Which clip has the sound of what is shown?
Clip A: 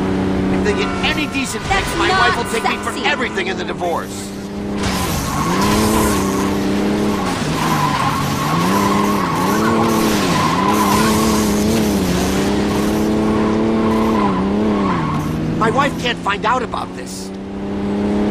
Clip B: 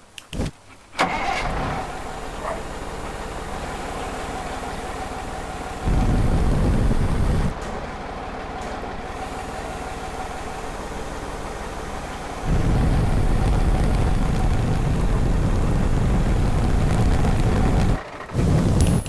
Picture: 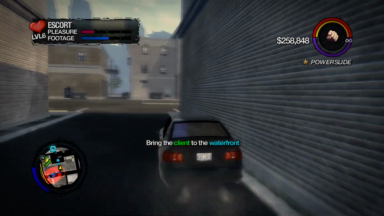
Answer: A